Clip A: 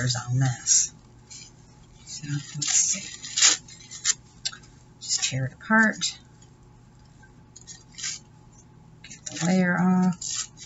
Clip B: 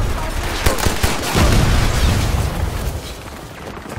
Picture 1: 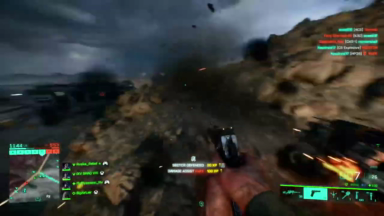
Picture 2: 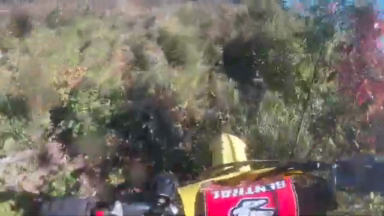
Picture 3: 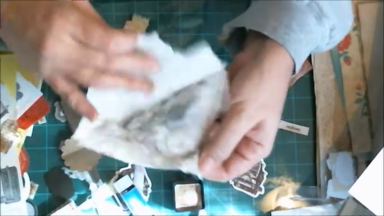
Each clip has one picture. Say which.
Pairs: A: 3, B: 1